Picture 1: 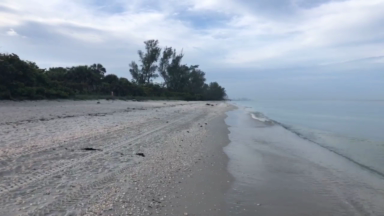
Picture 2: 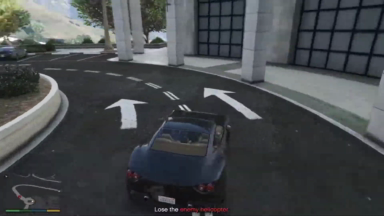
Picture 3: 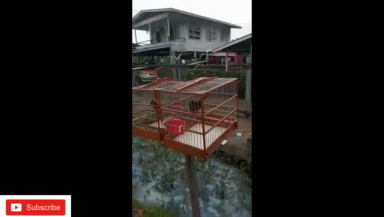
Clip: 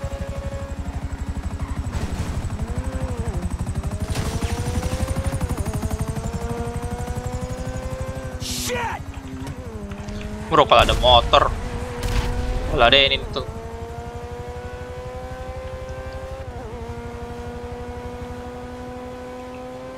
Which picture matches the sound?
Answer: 2